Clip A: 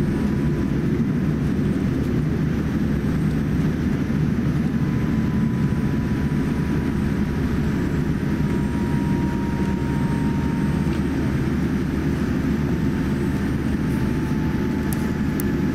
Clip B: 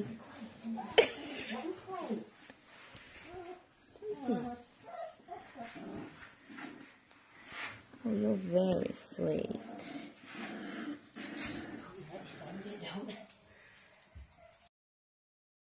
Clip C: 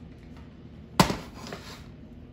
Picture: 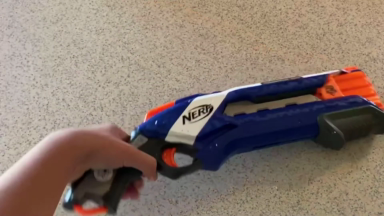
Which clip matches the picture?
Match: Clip C